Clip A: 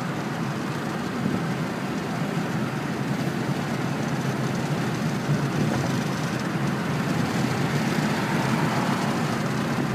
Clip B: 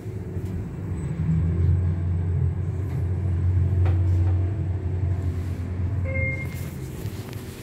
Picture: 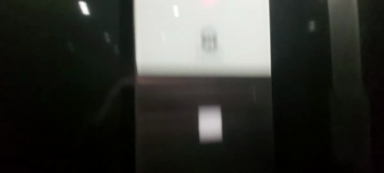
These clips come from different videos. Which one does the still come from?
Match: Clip B